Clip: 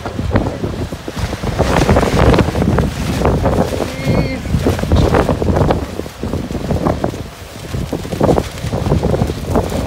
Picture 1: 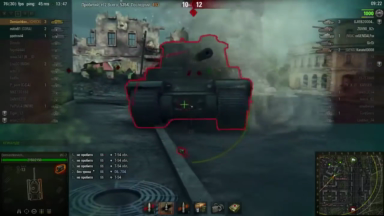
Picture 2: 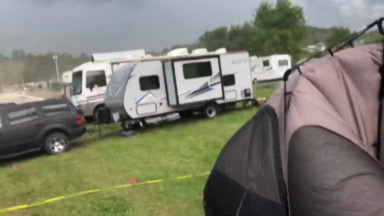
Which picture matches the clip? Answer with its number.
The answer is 2